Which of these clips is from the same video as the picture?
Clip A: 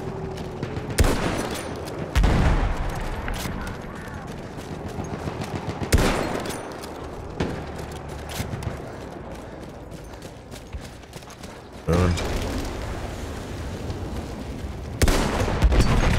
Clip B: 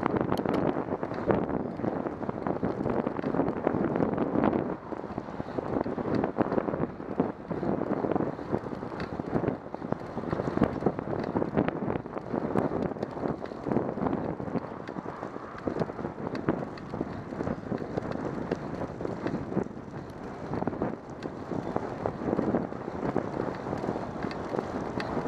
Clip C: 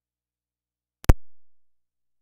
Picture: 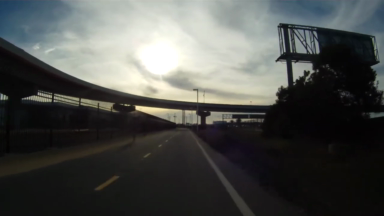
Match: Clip B